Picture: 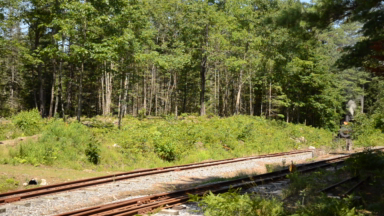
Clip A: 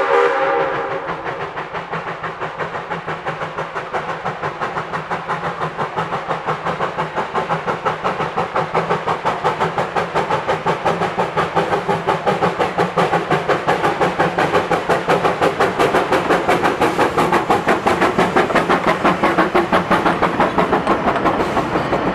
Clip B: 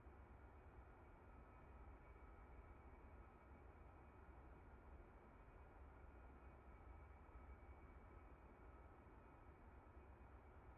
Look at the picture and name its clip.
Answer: A